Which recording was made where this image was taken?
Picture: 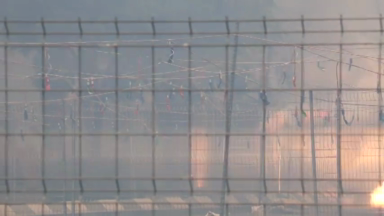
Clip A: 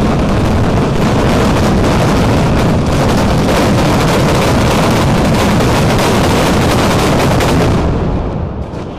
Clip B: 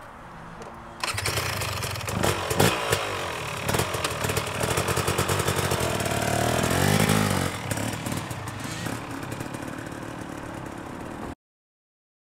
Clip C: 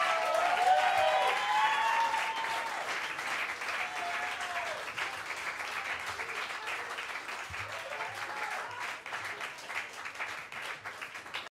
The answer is A